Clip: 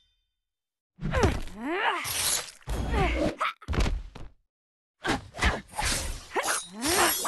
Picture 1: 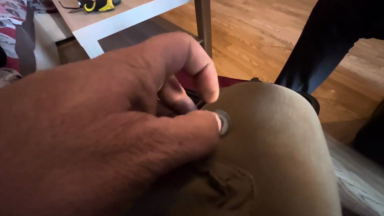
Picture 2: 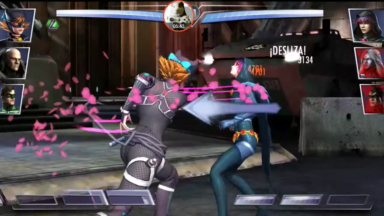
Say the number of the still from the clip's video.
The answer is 2